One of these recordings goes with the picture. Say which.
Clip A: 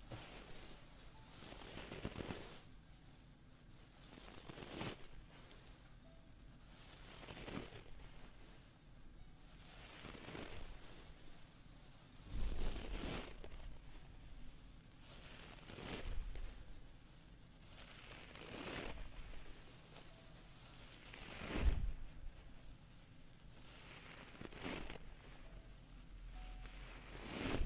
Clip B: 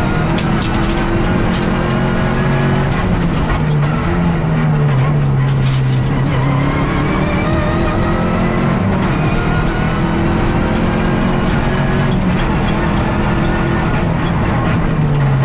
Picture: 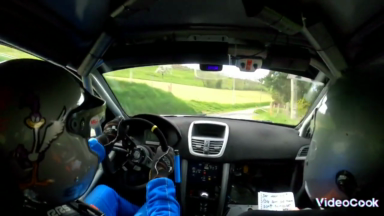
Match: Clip B